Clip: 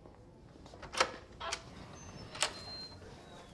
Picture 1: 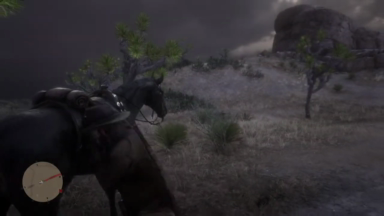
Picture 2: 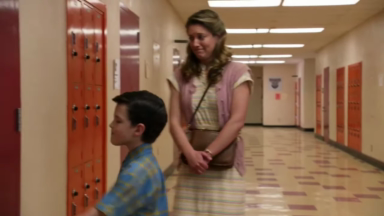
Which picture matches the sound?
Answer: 2